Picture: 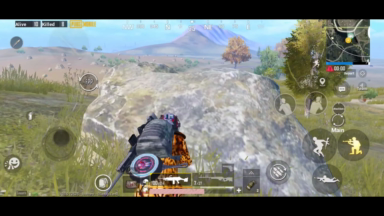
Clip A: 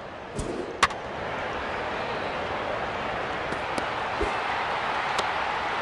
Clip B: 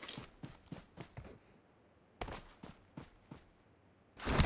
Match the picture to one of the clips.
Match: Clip B